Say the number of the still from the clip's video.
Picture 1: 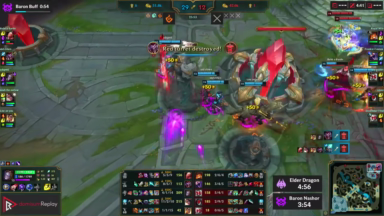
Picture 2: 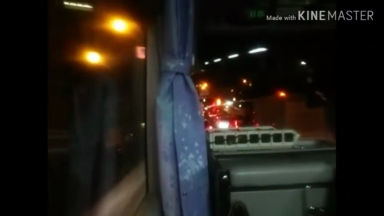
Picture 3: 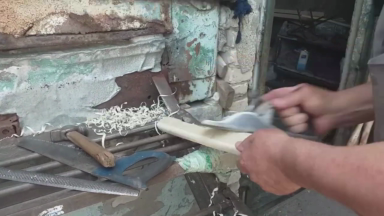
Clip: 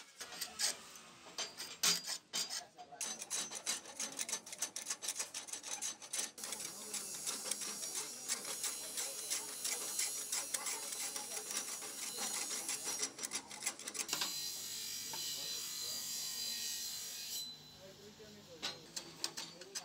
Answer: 3